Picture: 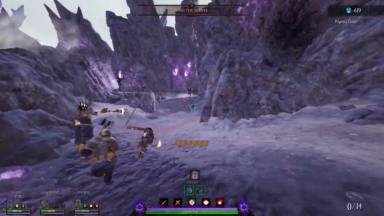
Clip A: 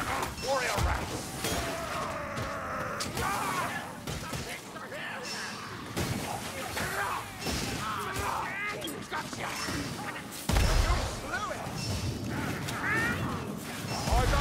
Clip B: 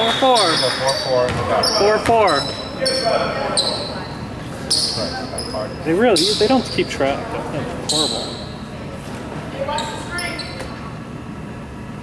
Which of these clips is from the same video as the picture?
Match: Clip A